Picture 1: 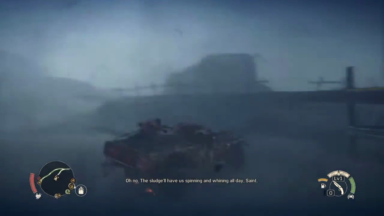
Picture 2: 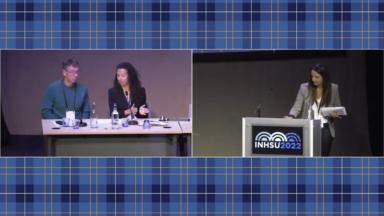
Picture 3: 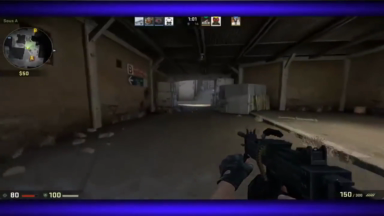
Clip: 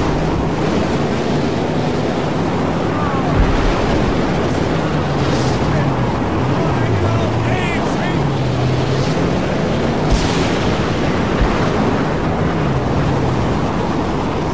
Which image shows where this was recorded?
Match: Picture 1